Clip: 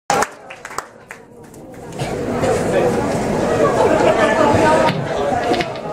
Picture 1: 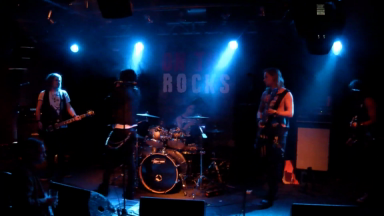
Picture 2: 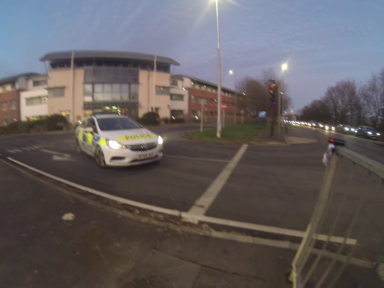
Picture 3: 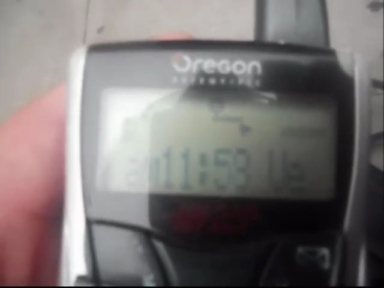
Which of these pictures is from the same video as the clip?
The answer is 1